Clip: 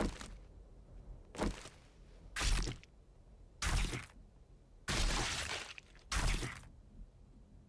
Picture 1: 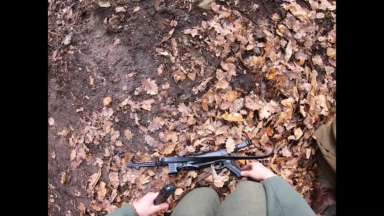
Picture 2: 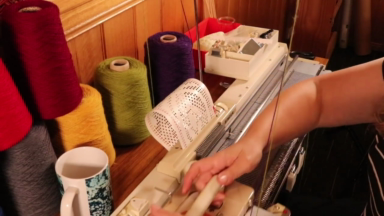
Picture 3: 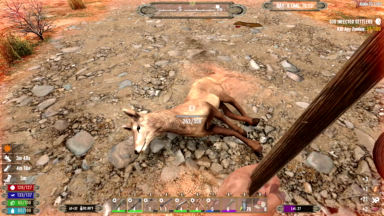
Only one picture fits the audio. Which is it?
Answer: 3